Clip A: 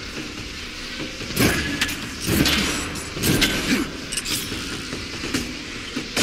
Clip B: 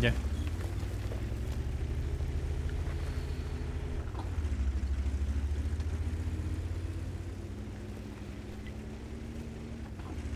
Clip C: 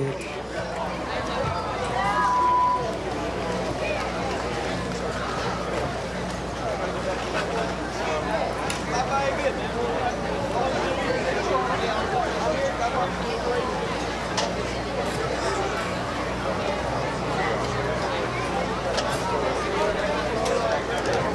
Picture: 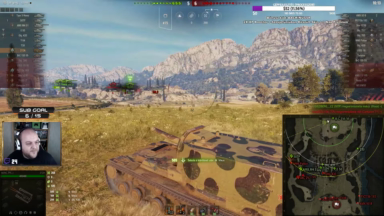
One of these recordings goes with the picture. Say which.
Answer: B